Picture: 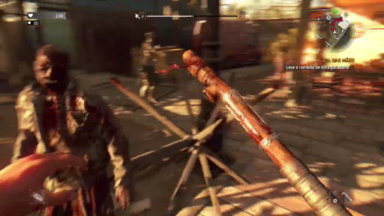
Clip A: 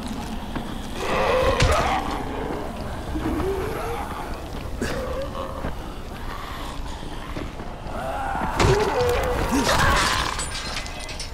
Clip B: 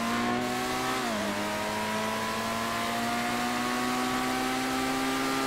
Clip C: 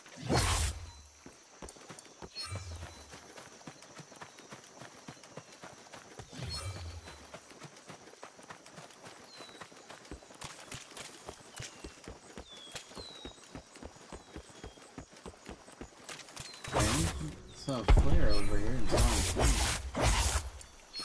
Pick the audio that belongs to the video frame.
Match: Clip A